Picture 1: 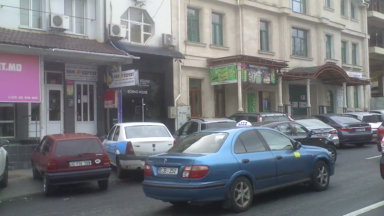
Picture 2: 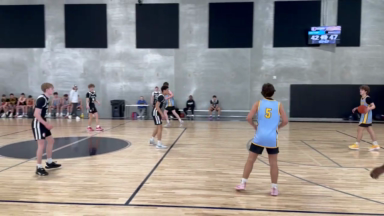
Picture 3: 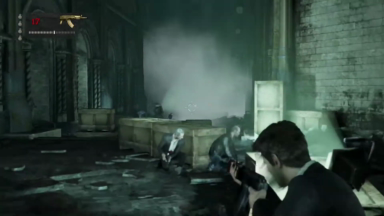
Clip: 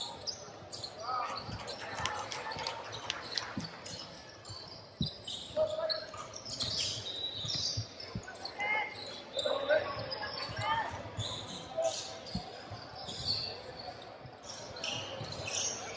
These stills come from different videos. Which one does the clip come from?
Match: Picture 2